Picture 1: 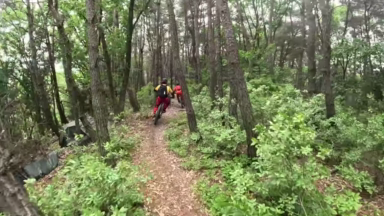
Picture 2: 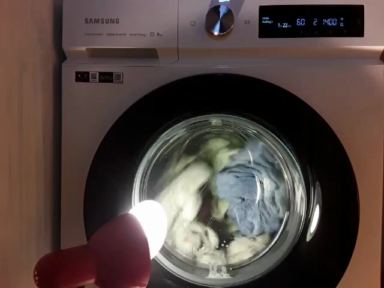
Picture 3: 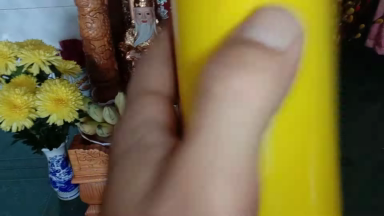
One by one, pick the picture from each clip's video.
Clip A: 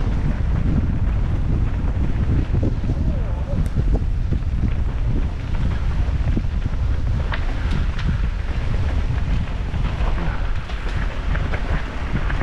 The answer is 1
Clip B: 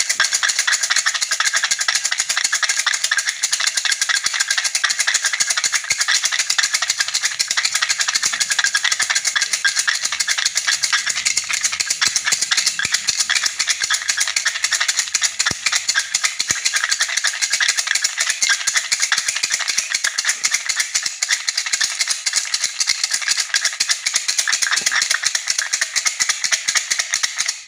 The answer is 3